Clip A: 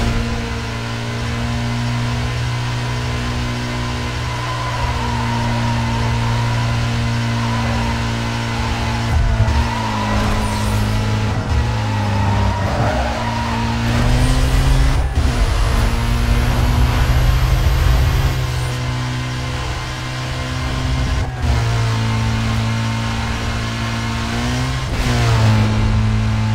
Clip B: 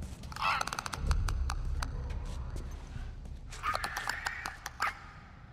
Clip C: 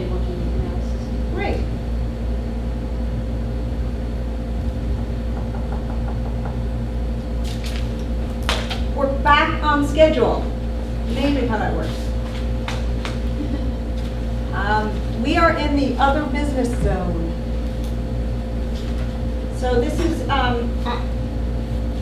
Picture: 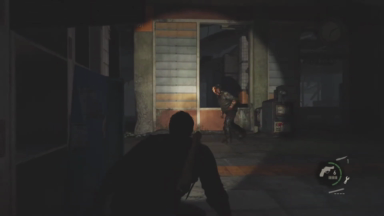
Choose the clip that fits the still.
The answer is B